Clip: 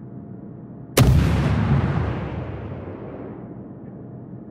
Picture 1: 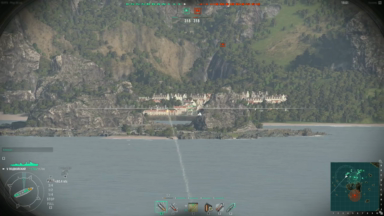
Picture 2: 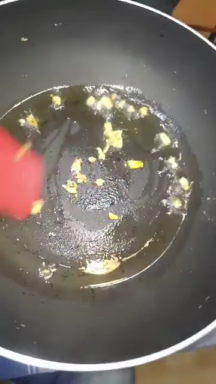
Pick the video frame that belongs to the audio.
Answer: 1